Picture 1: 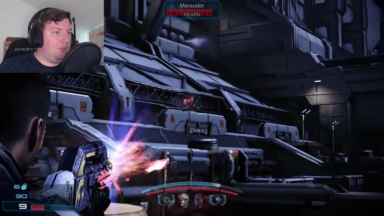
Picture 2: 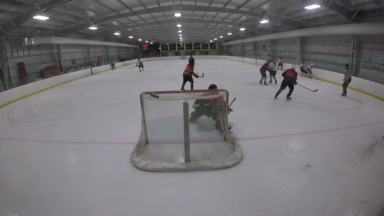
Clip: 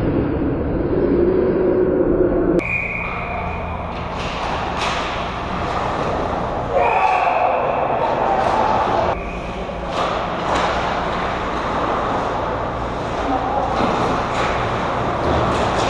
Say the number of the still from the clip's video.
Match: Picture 2